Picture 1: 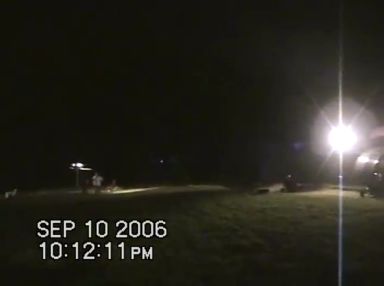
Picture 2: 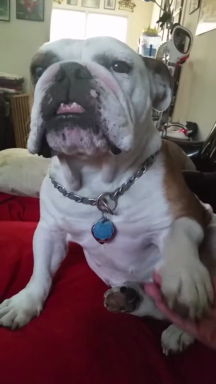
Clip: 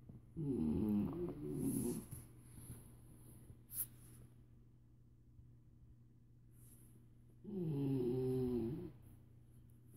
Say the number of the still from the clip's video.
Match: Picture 2